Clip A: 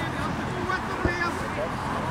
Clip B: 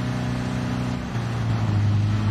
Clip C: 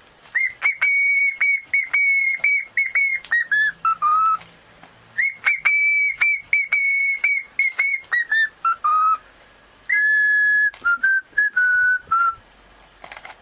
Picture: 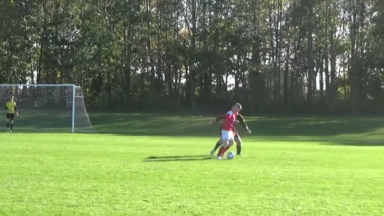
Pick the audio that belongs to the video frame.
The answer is A